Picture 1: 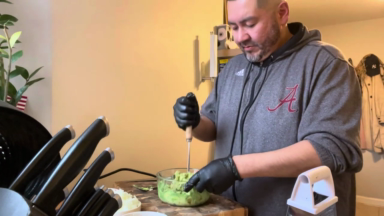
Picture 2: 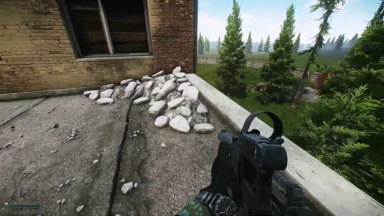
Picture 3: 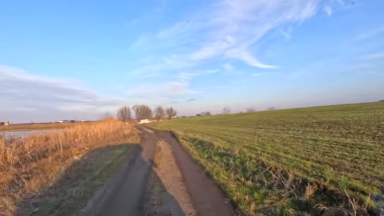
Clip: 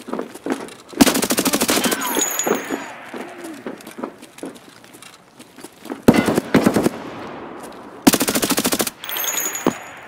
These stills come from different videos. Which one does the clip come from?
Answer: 2